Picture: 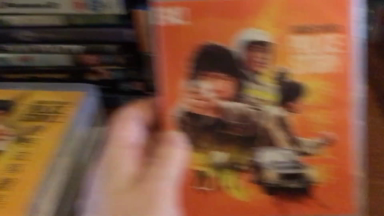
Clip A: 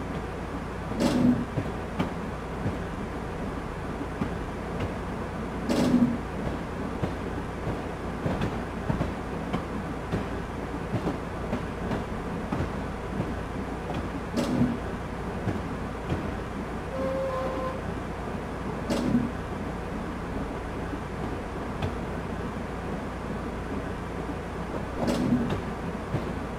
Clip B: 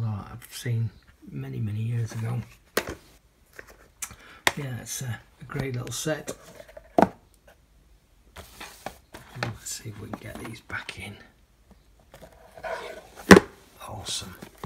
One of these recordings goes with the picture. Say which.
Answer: B